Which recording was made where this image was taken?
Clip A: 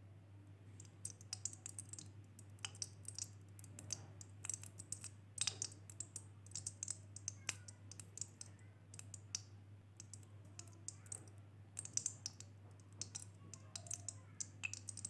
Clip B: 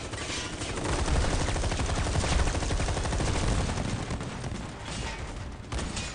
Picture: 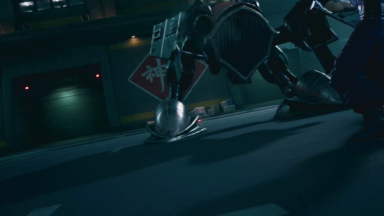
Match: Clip B